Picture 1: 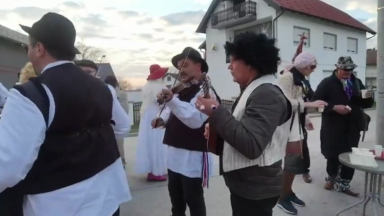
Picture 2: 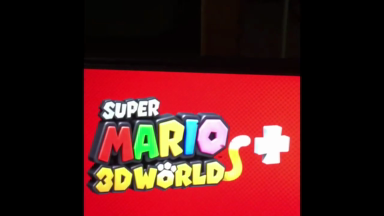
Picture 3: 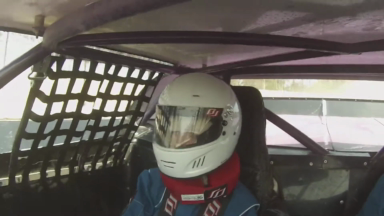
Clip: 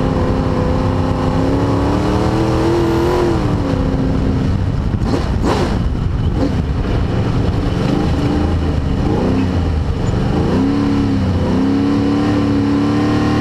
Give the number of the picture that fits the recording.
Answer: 3